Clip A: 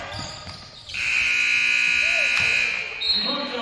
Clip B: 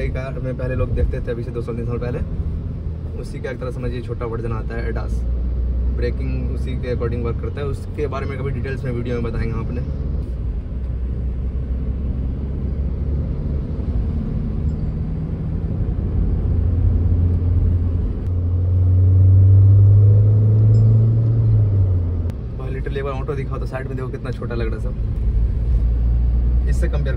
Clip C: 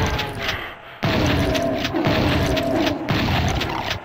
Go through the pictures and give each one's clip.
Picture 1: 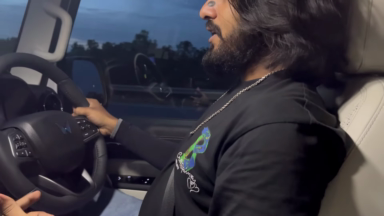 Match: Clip B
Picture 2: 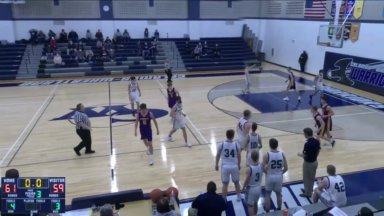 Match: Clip A